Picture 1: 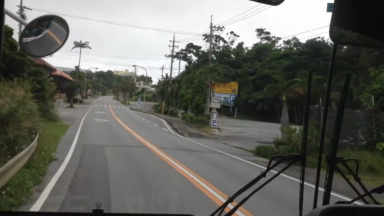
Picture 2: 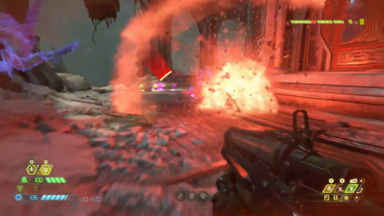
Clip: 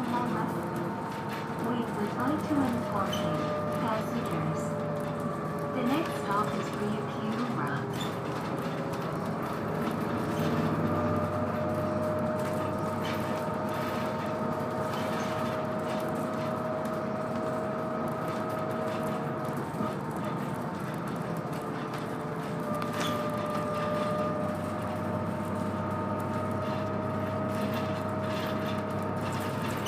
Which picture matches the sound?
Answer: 1